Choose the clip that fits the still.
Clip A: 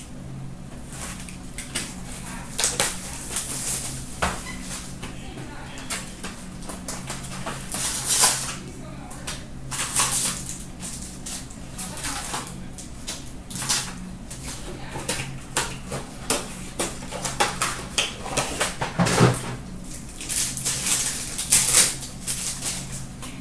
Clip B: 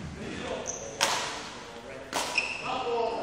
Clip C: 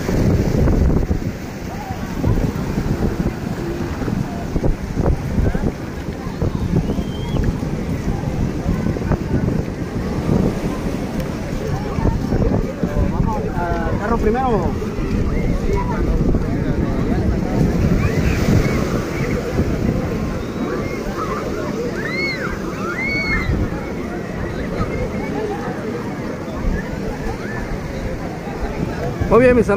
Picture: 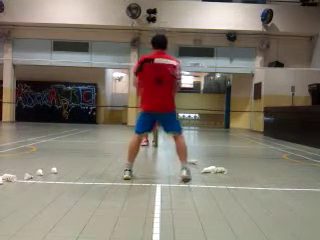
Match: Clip B